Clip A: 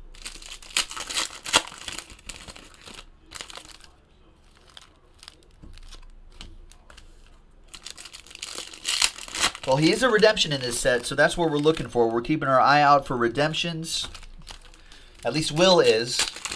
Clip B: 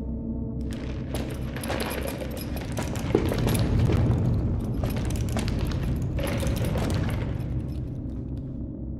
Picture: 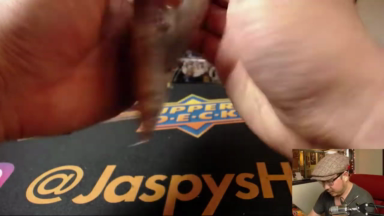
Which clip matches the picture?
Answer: A